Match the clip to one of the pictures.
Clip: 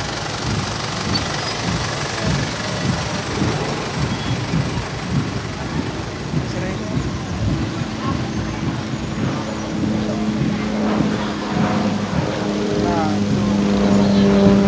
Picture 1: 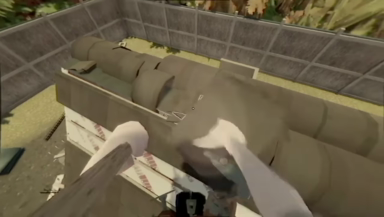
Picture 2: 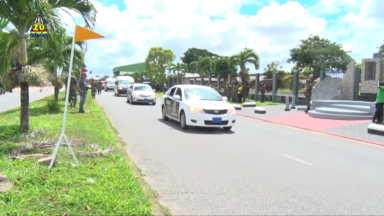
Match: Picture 2